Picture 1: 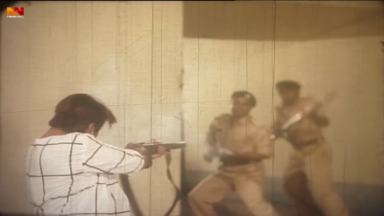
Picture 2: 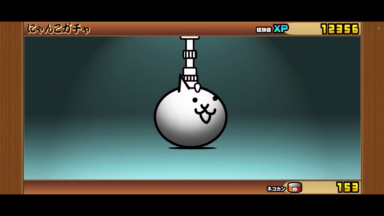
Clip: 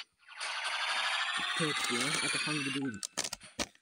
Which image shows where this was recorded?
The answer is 2